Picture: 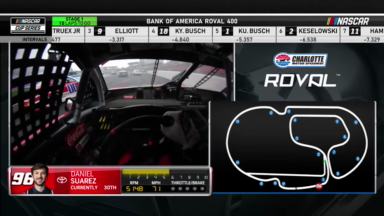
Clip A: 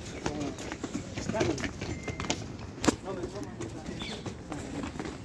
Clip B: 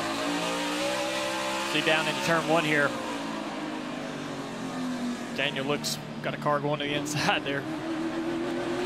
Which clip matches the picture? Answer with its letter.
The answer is B